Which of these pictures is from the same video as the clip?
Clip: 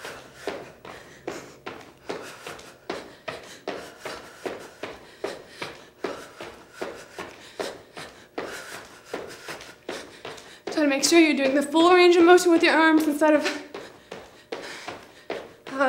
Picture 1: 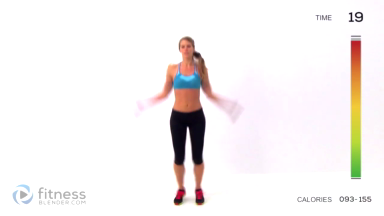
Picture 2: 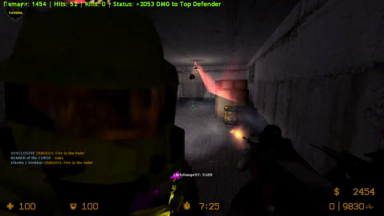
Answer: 1